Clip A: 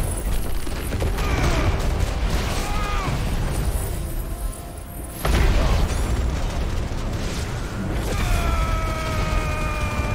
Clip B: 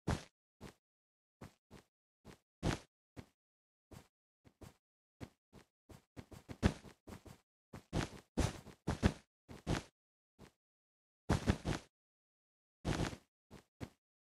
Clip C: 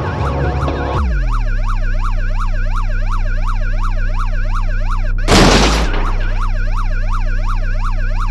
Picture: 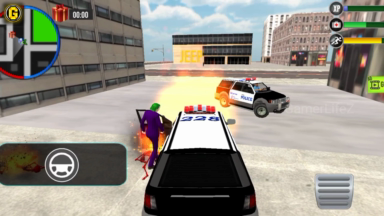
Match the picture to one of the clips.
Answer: C